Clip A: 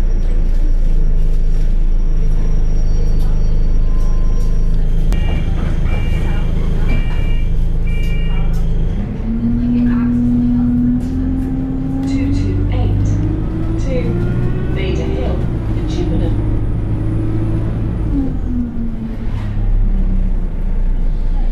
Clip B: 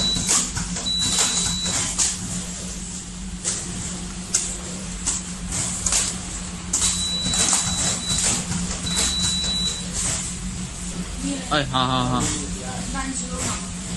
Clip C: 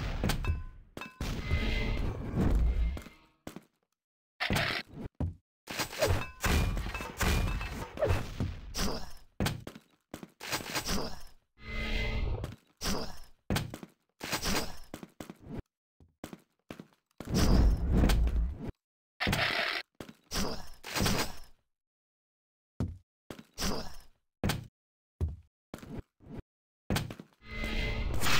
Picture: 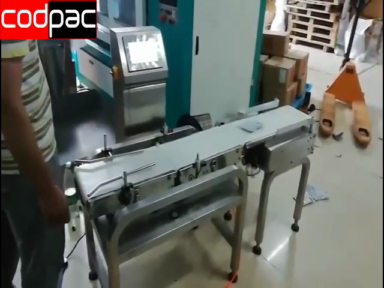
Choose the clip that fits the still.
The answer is B